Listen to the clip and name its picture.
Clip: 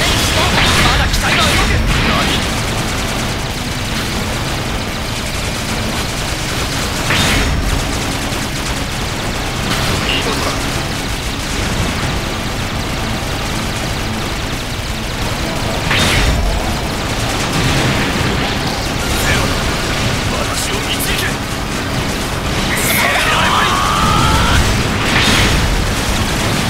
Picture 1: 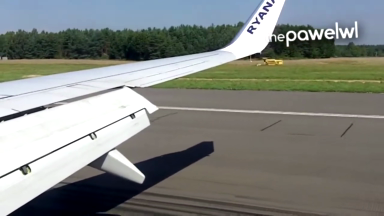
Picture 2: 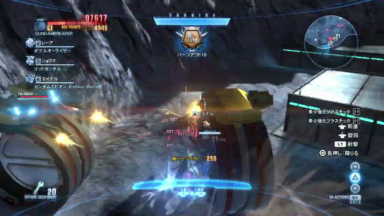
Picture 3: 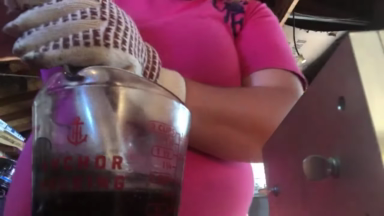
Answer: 2